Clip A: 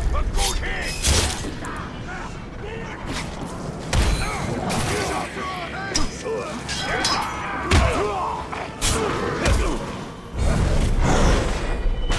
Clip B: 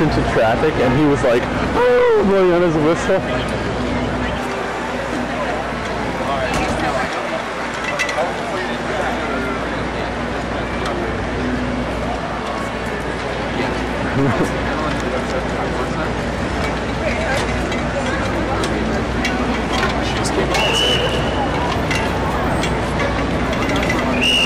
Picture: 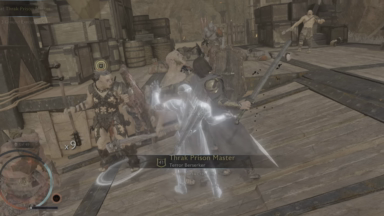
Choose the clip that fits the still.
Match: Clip A